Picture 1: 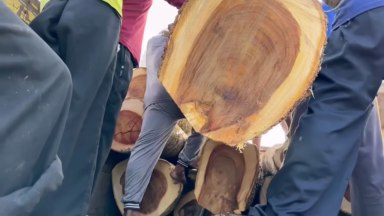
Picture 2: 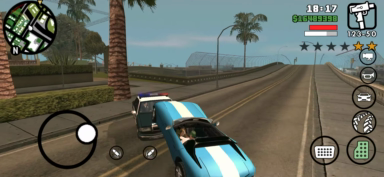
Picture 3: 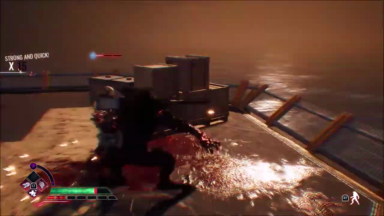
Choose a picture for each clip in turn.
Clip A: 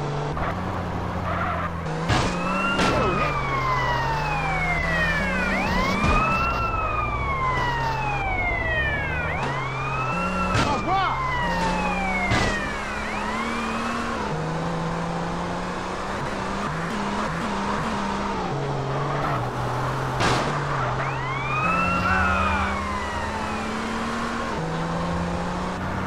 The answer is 2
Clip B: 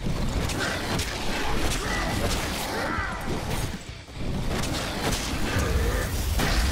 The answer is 3